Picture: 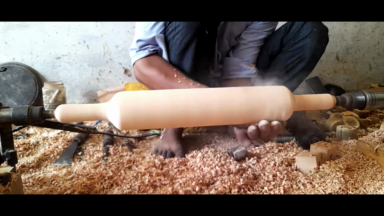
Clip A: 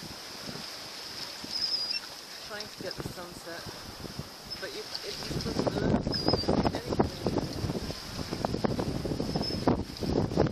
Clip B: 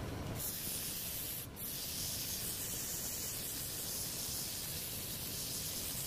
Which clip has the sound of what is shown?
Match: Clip B